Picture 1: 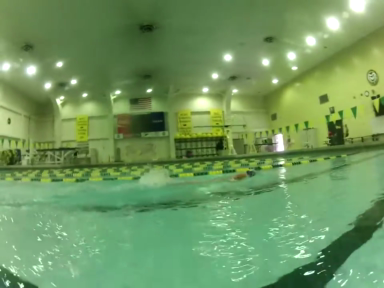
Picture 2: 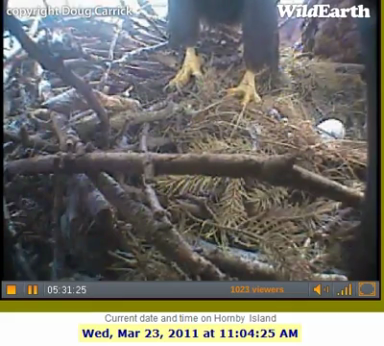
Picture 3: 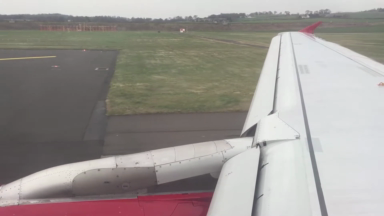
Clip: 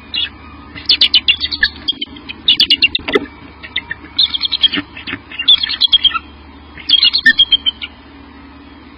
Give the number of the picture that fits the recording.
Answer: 2